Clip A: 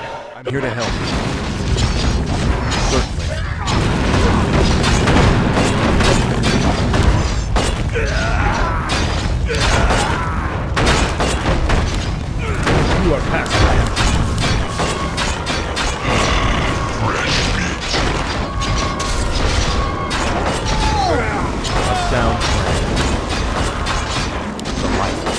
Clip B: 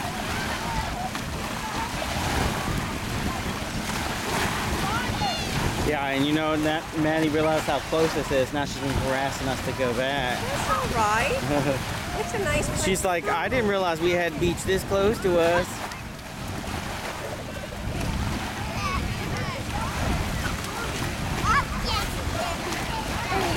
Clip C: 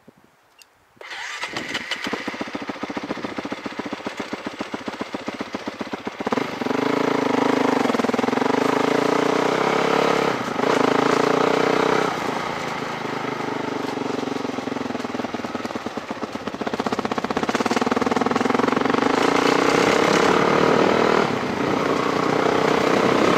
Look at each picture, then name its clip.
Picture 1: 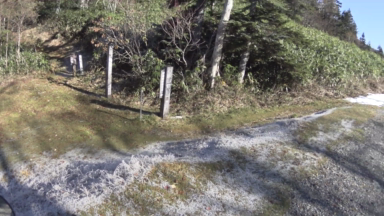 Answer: C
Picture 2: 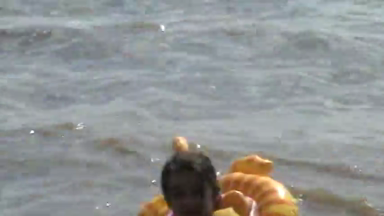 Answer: B